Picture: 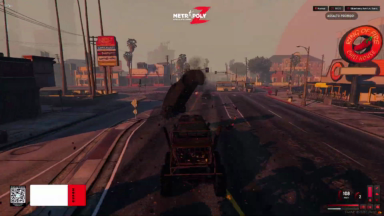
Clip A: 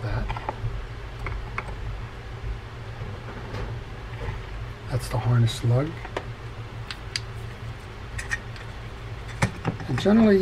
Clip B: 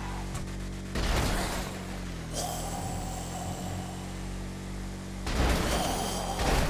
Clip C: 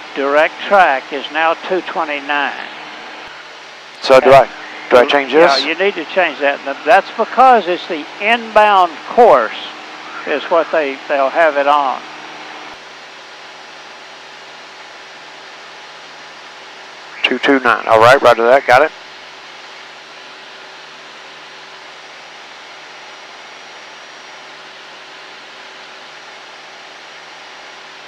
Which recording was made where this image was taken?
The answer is B